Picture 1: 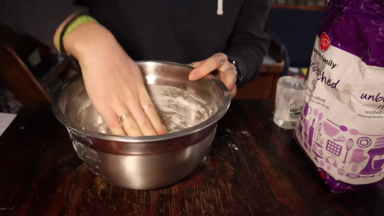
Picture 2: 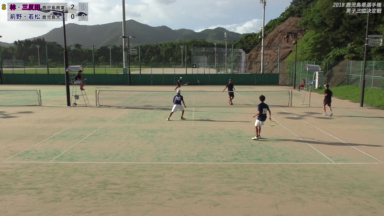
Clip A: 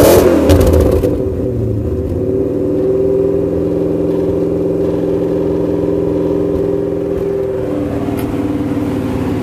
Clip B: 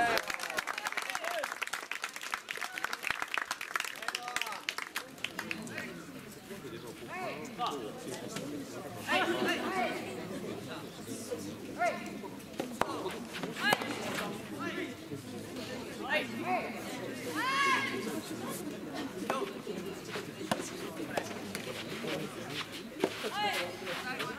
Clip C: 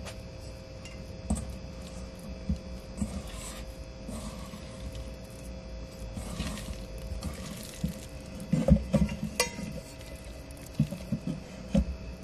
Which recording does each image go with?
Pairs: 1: C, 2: B